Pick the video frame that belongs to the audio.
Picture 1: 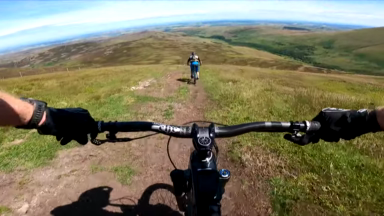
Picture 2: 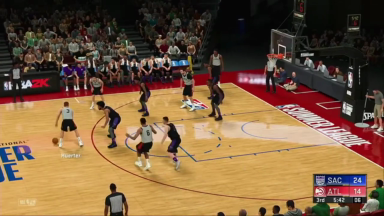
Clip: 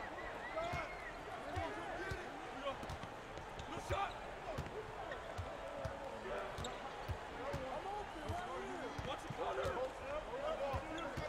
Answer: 2